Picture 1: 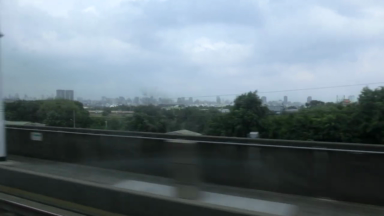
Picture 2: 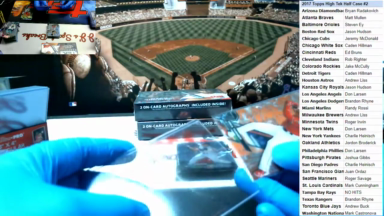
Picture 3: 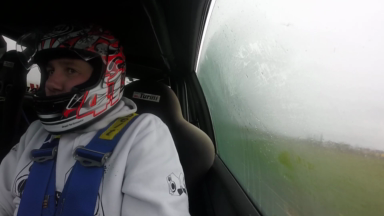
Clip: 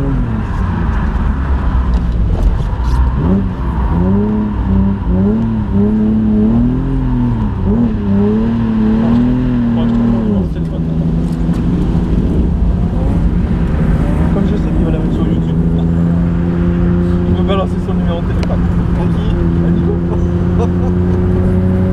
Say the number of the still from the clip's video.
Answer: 3